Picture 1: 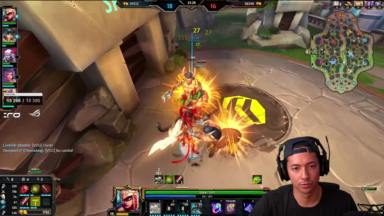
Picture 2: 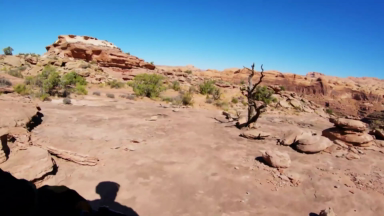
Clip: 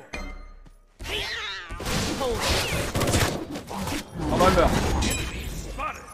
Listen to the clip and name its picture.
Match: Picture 1